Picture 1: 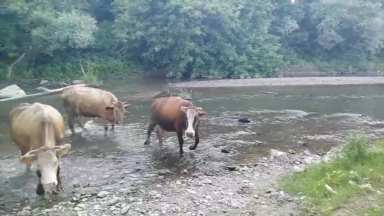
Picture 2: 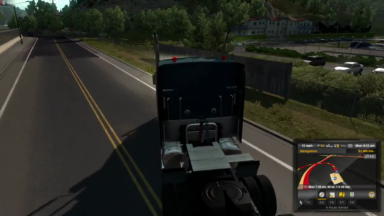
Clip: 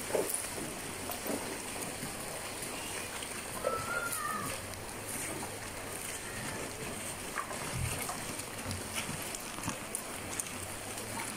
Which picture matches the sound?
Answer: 1